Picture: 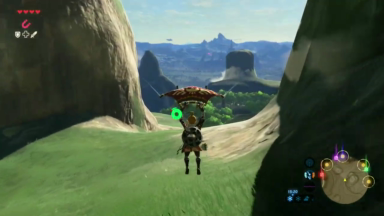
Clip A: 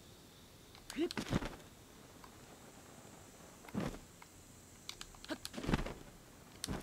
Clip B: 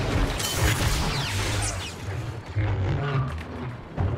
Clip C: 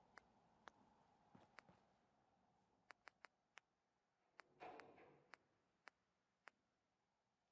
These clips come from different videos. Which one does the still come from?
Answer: A